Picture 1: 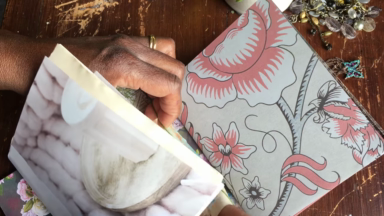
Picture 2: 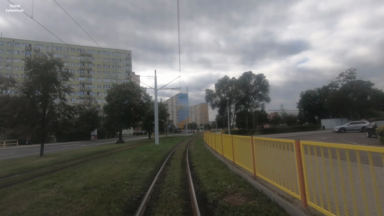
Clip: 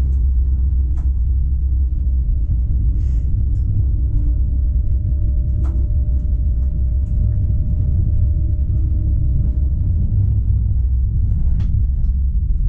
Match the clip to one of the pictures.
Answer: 2